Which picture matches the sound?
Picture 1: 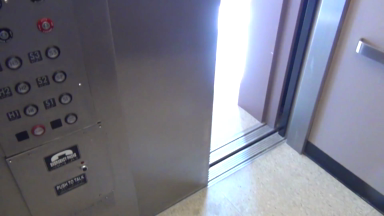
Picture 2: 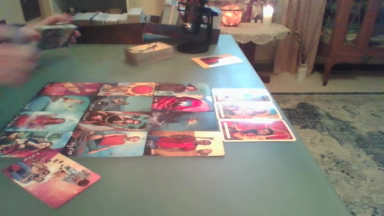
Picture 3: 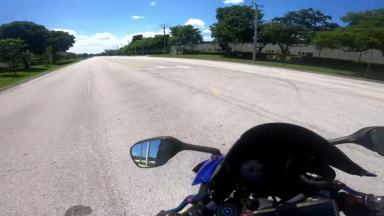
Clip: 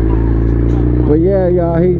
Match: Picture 3